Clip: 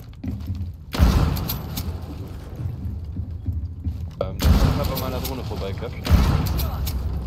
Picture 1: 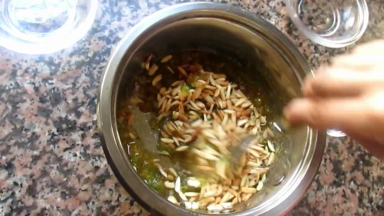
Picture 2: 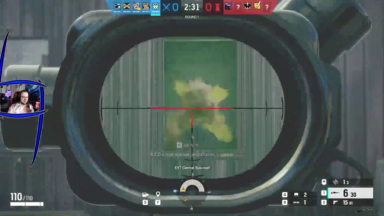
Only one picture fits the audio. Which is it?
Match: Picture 2